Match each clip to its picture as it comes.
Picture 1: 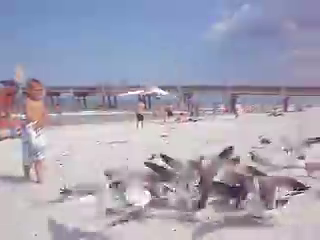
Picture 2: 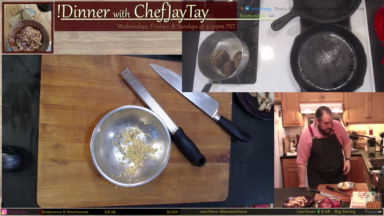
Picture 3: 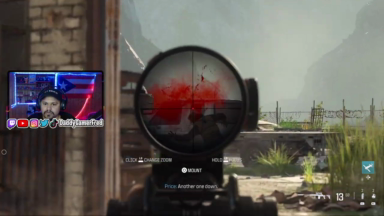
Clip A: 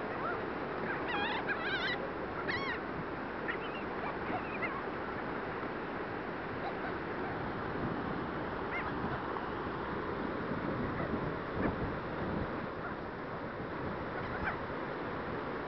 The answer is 1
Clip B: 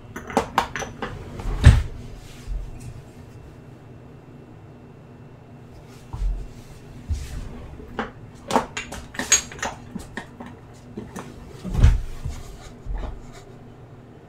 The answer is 2